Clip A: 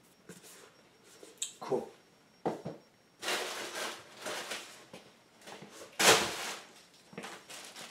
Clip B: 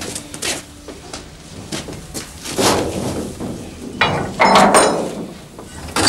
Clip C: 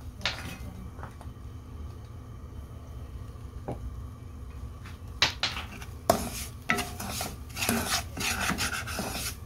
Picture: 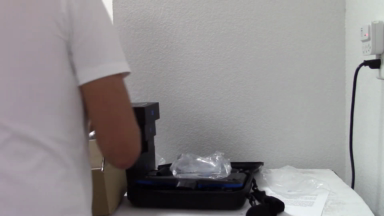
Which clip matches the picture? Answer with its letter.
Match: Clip A